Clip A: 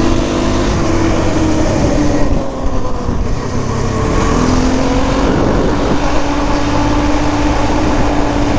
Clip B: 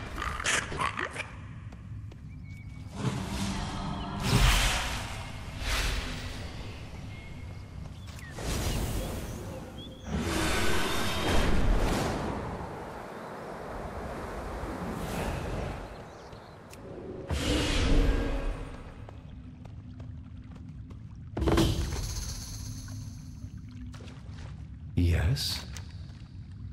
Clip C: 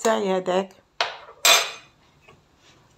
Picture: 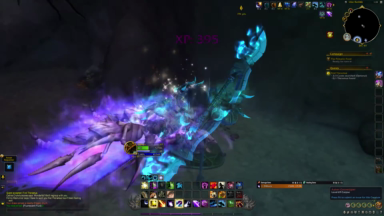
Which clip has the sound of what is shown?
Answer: B